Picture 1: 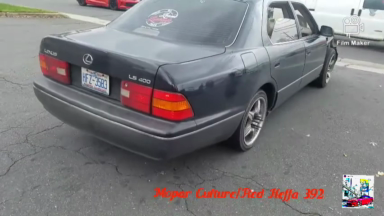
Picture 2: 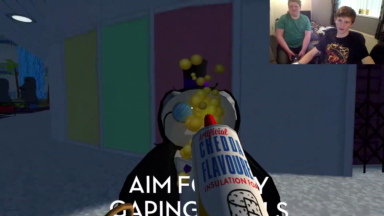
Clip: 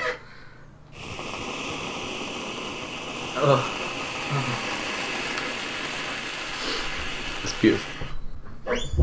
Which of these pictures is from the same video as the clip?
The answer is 2